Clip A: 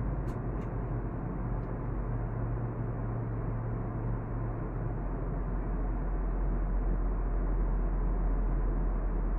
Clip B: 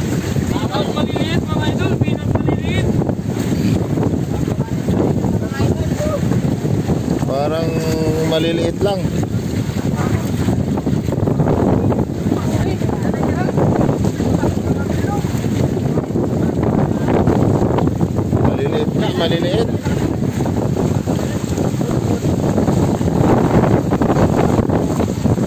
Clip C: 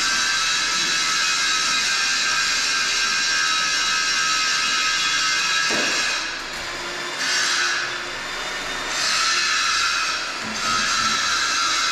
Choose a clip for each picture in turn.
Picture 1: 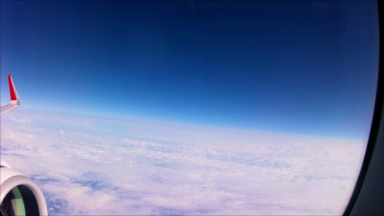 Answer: A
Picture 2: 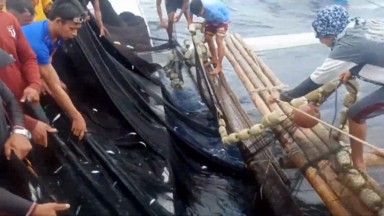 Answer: B